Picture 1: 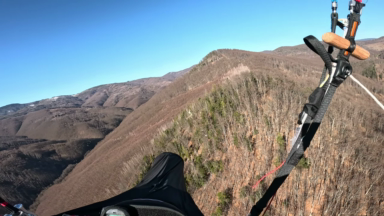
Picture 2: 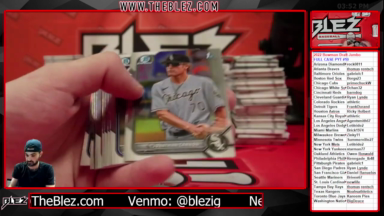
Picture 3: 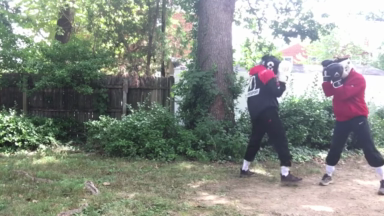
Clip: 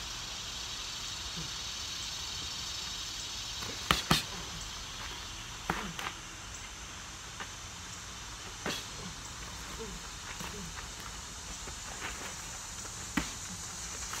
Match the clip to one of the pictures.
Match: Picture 3